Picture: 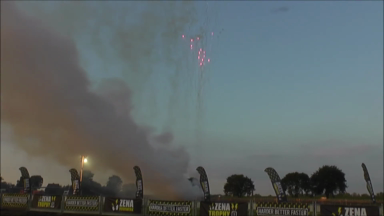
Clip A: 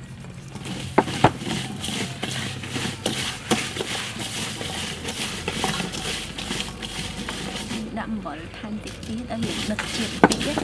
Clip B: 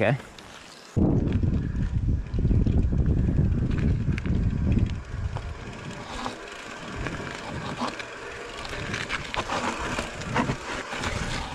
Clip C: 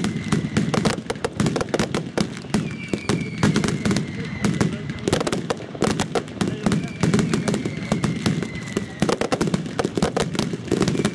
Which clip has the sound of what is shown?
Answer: C